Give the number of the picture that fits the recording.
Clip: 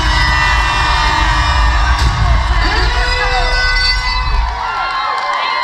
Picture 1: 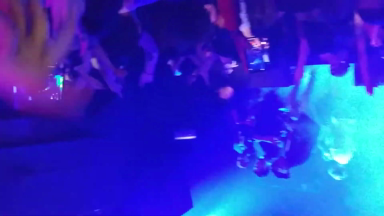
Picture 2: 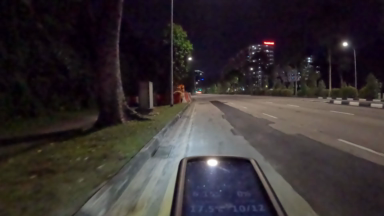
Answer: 1